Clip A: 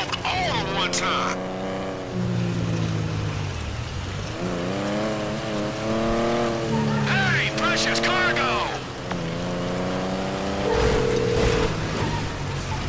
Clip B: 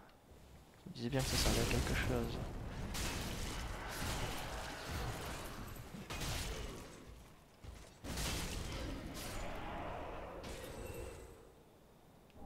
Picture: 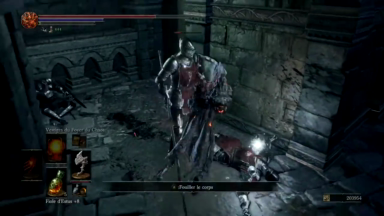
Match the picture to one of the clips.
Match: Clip B